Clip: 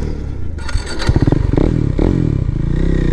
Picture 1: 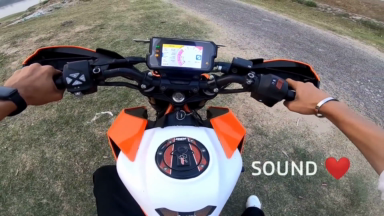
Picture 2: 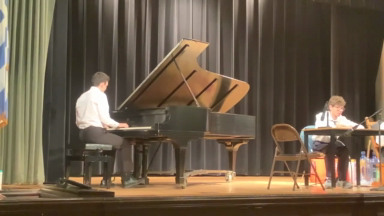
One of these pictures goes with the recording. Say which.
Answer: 1